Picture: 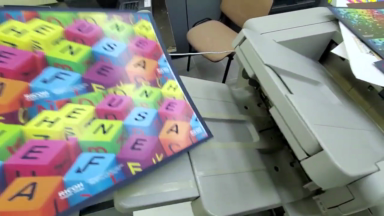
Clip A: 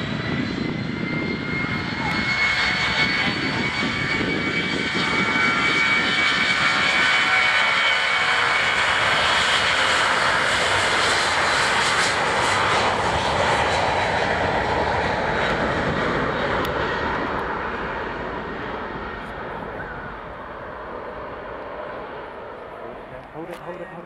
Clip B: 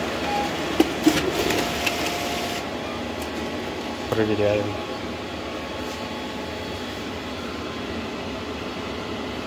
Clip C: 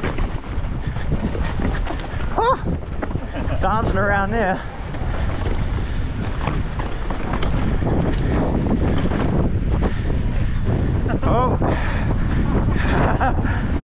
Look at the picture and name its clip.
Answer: B